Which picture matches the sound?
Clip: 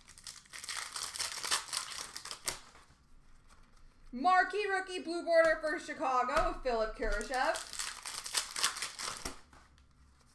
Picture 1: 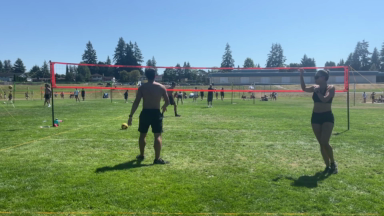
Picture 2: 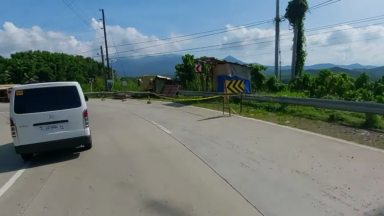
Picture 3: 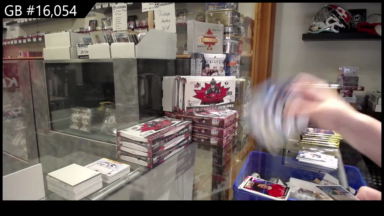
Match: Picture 3